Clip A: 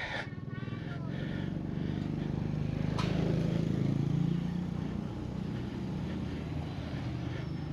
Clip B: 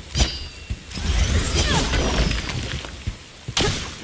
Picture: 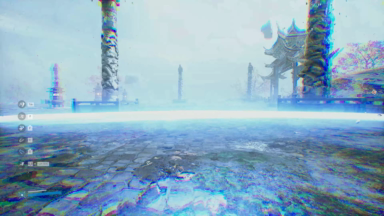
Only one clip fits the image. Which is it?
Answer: B